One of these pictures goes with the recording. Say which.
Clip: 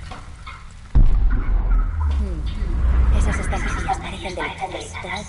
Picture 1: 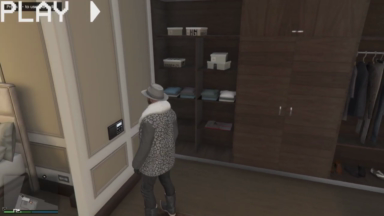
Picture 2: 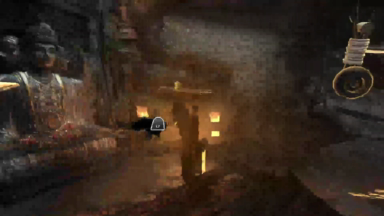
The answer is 2